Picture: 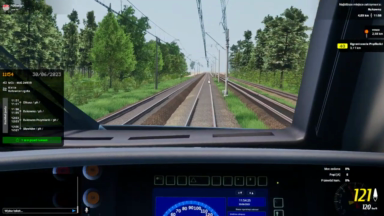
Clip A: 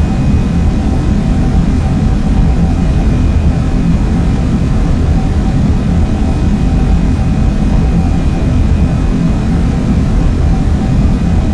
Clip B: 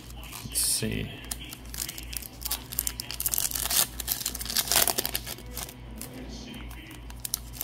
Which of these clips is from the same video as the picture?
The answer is A